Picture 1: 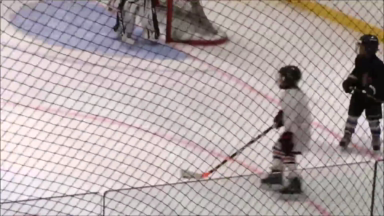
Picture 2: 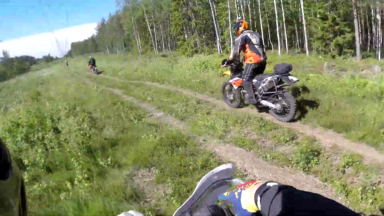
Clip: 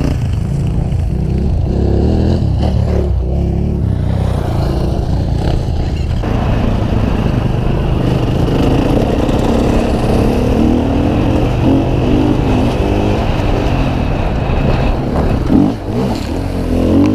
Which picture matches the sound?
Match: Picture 2